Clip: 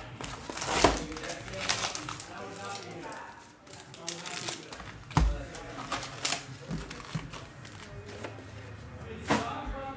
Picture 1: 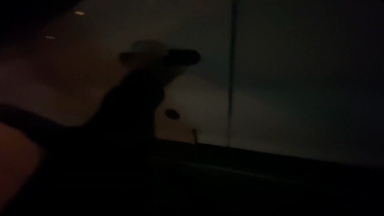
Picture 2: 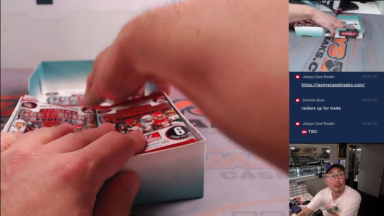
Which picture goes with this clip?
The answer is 2